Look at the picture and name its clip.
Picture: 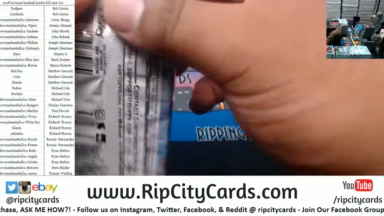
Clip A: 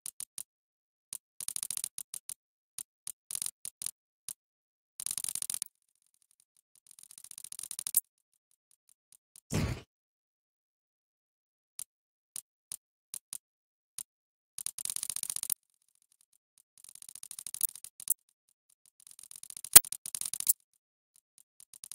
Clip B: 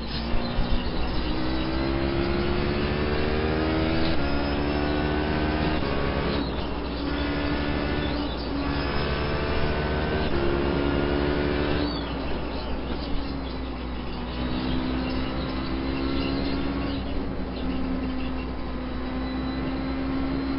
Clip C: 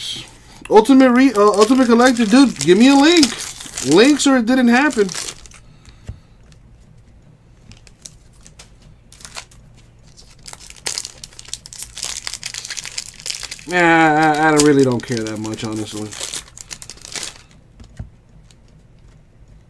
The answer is C